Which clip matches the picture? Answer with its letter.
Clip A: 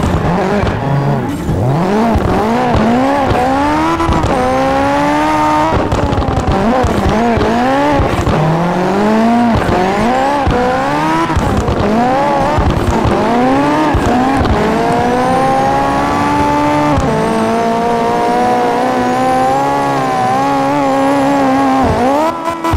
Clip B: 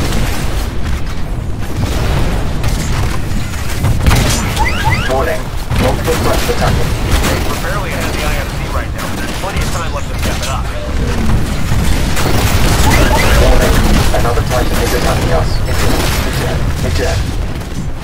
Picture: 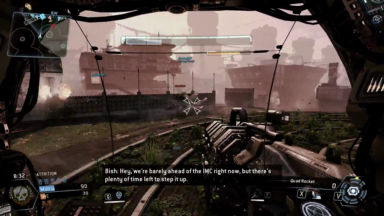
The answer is B